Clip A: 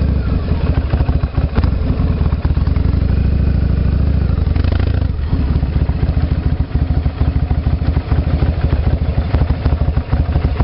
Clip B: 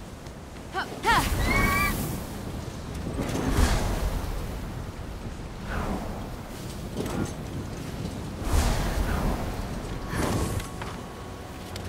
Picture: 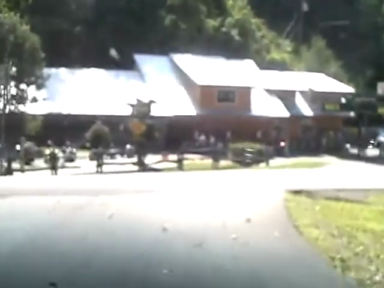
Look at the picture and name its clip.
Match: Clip A